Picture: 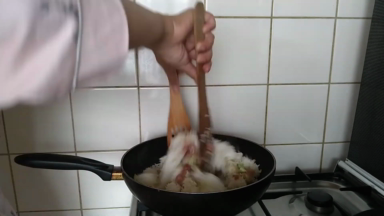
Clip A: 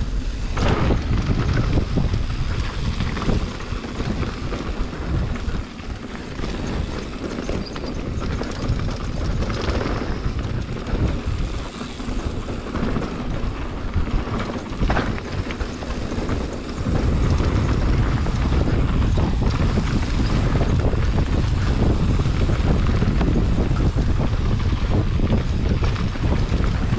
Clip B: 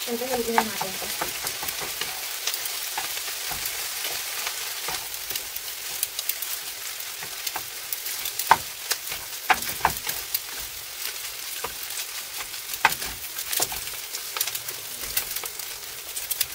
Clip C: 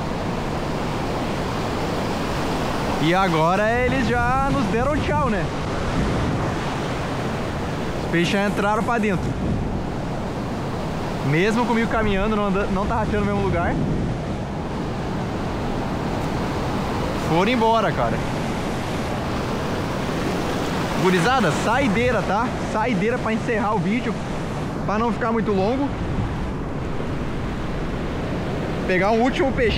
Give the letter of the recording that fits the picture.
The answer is B